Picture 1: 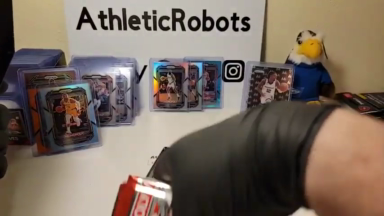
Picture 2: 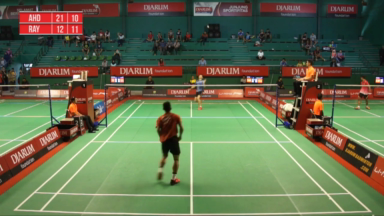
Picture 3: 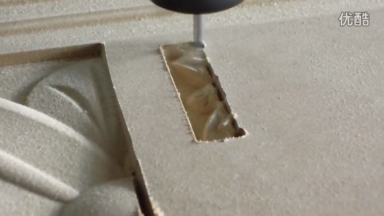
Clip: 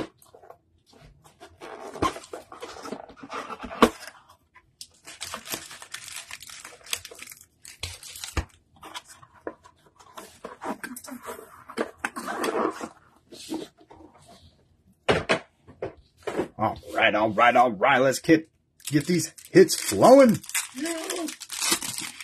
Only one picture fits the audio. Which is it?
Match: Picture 1